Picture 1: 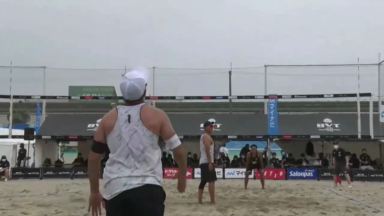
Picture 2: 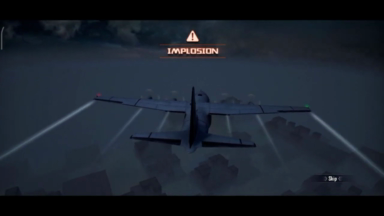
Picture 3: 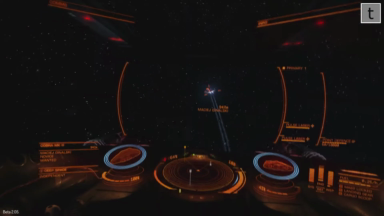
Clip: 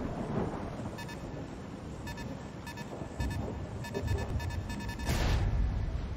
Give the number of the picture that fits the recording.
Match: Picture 2